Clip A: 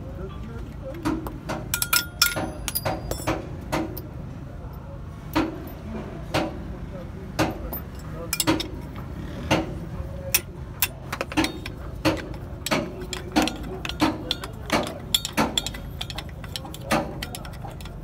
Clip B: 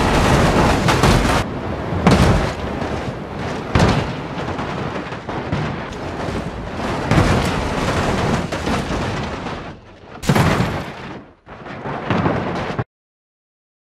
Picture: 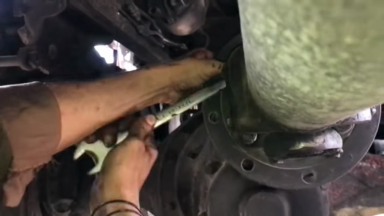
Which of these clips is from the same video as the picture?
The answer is A